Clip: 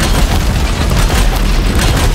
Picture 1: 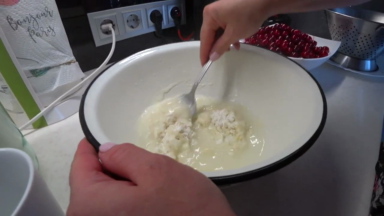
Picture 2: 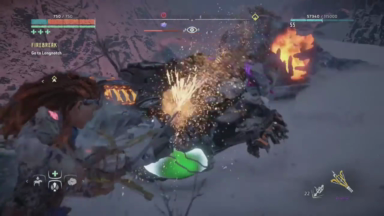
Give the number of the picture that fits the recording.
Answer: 2